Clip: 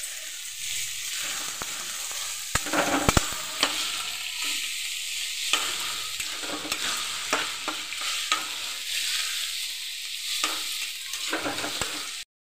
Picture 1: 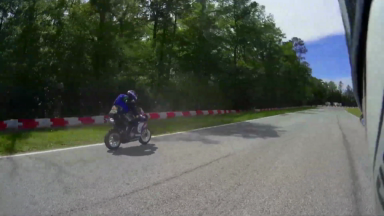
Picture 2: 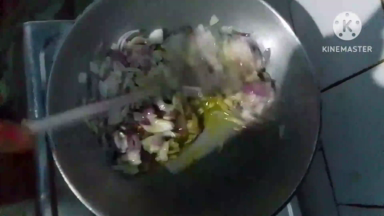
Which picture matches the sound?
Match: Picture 2